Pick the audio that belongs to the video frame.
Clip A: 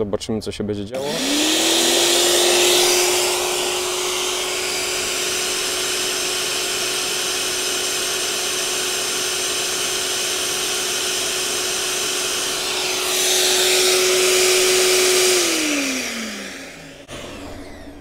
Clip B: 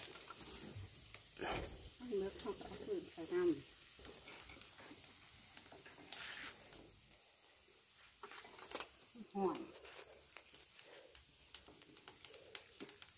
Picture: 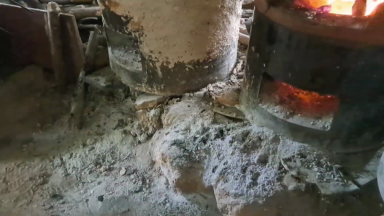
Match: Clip B